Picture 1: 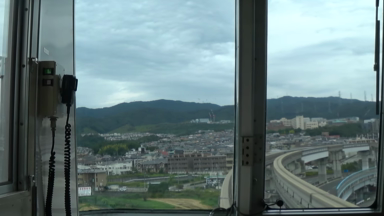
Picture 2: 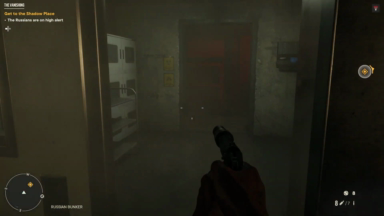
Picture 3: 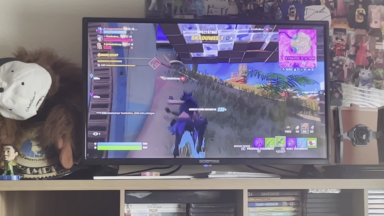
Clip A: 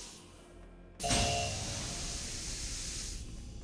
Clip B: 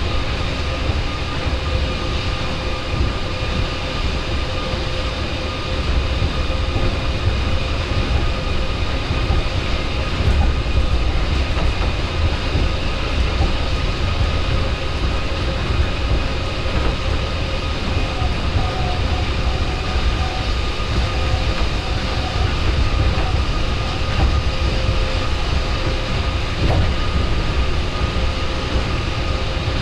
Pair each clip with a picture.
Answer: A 2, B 1